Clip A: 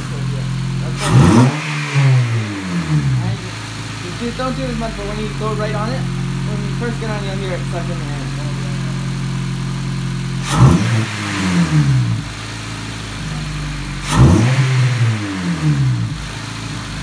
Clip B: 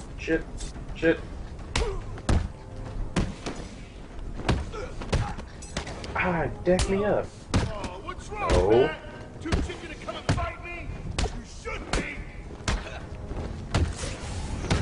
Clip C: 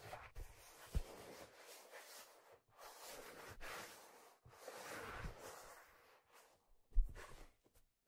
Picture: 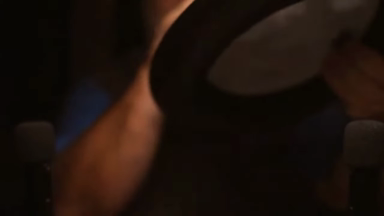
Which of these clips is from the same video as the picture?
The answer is C